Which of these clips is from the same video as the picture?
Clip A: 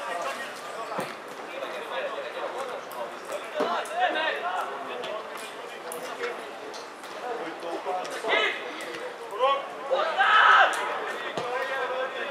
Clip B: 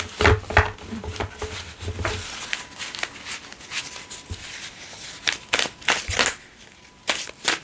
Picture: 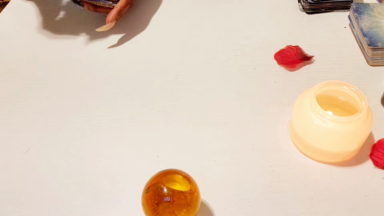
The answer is B